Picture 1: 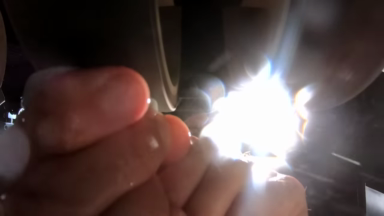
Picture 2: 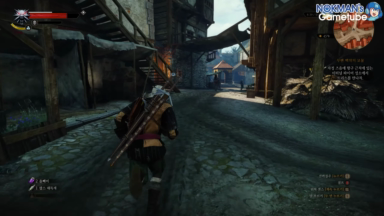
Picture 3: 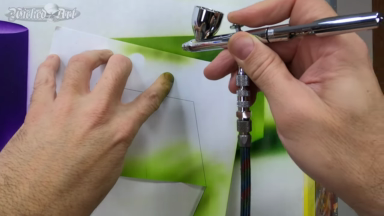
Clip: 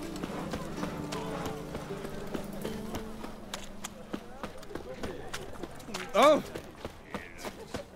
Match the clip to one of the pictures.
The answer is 2